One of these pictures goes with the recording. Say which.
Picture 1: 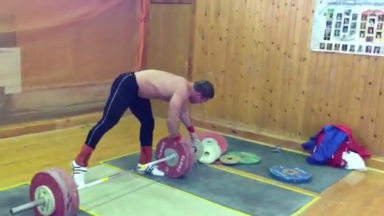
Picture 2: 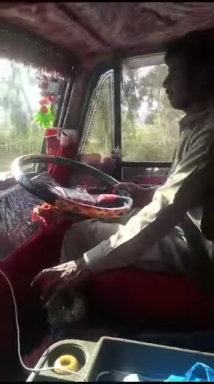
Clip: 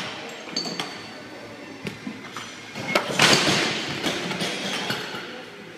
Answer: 1